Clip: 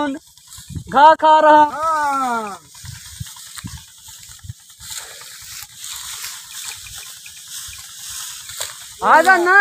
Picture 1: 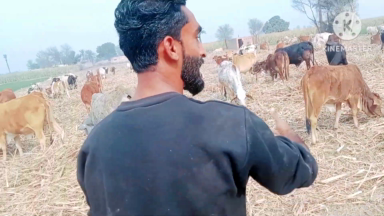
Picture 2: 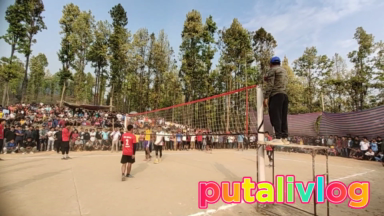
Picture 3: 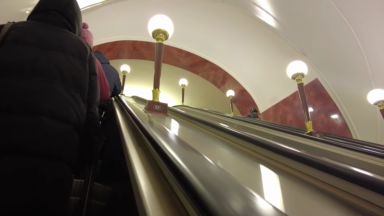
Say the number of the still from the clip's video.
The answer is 1